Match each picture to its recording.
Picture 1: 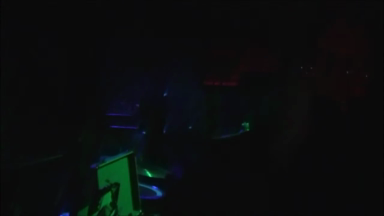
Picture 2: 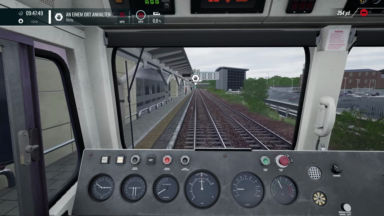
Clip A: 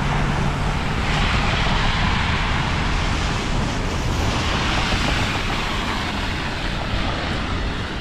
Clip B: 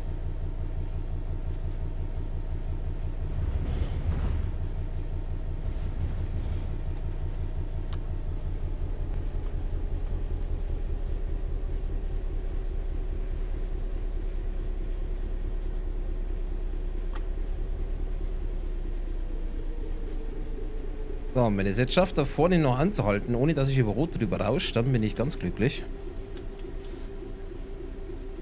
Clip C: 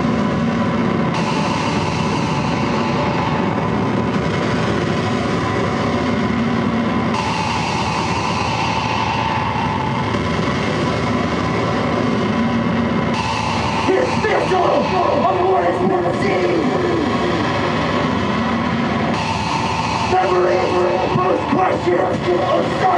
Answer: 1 C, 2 B